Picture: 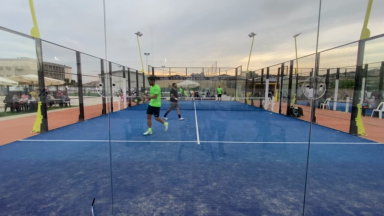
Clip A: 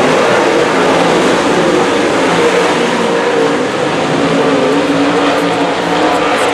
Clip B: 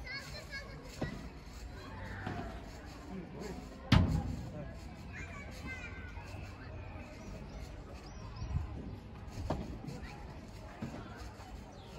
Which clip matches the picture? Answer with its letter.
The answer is B